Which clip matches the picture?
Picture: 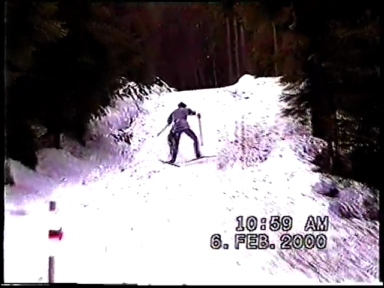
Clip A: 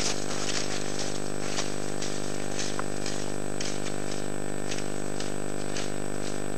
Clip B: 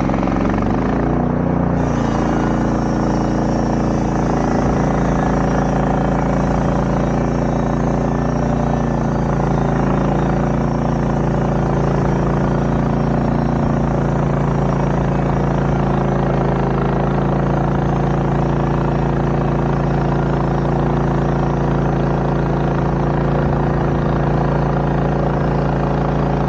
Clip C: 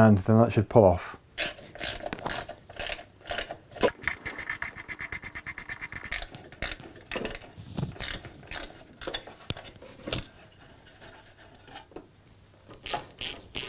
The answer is A